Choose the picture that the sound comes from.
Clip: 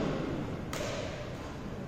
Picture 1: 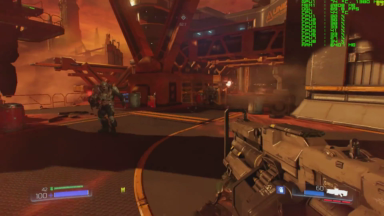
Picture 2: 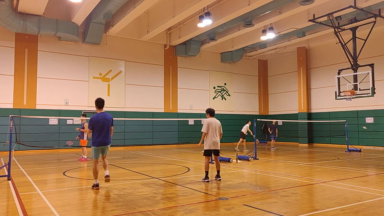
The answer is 2